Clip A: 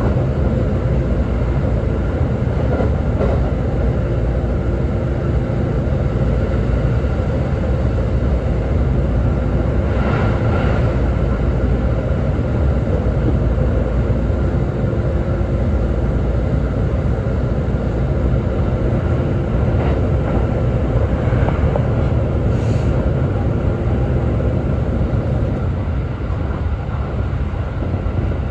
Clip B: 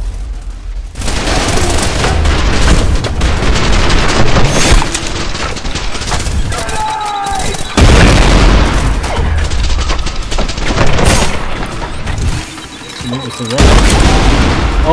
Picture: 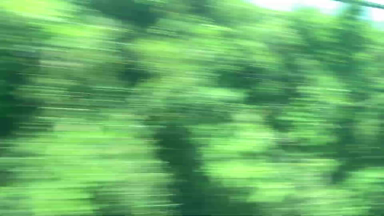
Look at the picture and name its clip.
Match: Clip A